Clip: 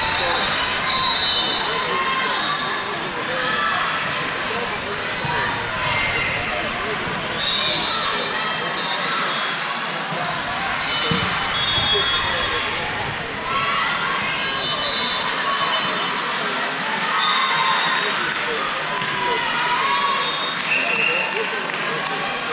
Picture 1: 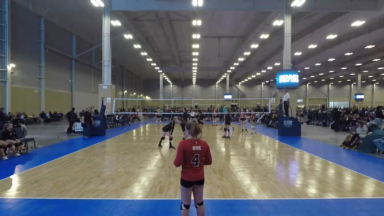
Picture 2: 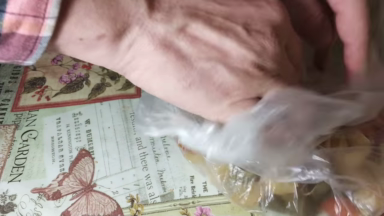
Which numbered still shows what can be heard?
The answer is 1